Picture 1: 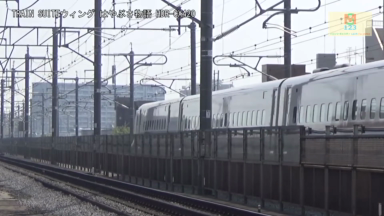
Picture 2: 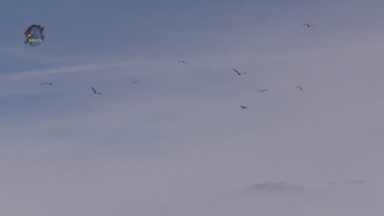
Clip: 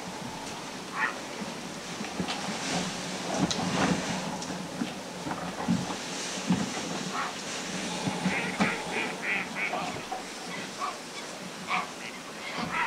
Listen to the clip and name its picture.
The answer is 2